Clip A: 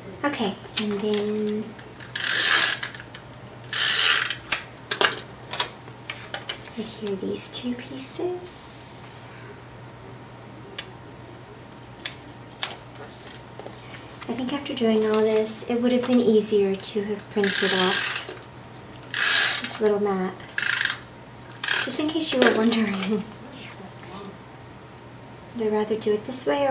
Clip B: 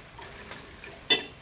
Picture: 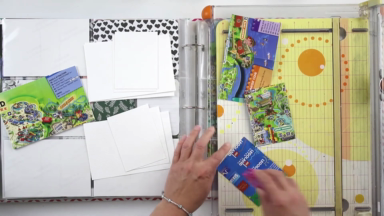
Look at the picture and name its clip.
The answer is A